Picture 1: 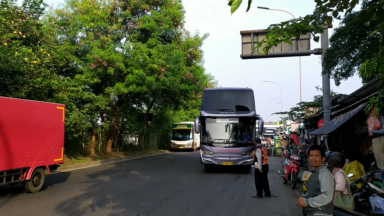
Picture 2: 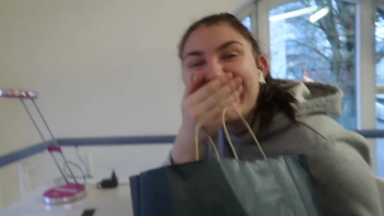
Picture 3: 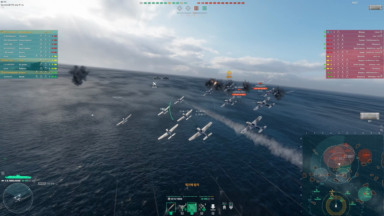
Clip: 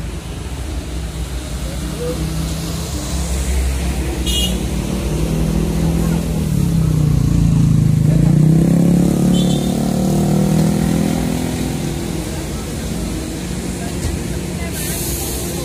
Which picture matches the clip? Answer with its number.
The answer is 1